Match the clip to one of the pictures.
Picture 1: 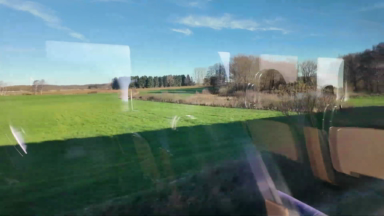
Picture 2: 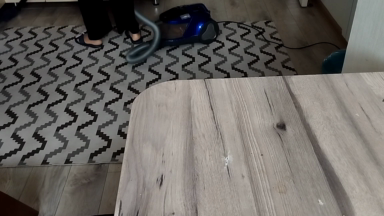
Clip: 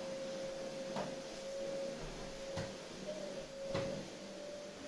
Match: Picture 2